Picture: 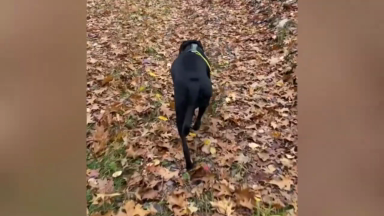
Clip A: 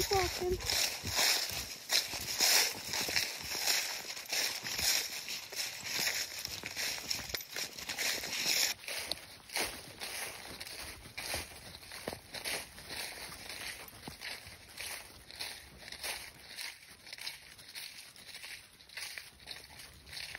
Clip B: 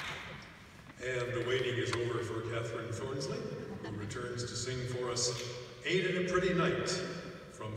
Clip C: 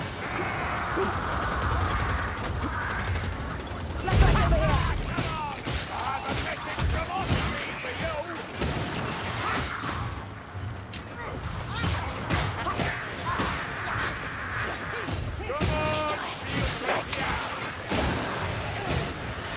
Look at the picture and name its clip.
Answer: A